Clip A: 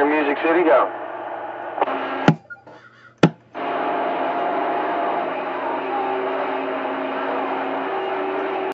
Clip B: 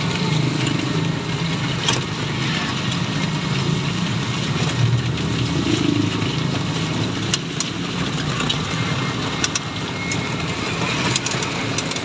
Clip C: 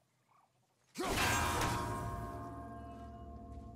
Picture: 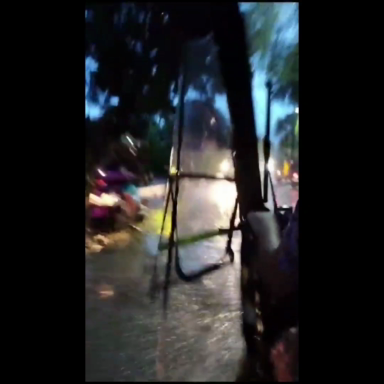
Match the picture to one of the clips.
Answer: B